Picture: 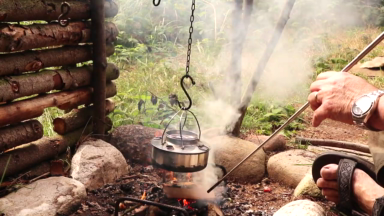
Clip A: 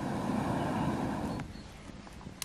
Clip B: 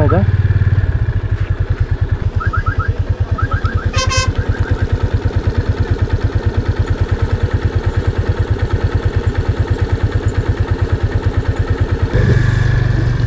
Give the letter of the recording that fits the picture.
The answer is A